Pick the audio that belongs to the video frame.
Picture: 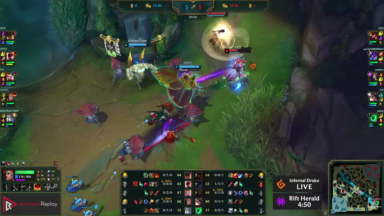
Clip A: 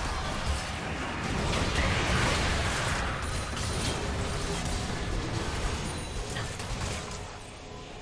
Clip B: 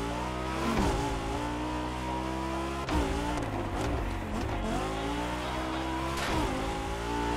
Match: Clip A